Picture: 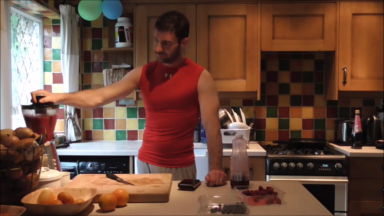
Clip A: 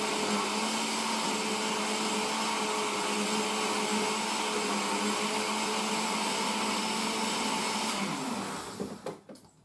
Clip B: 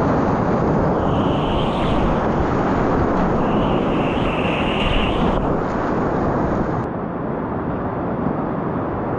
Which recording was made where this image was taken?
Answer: A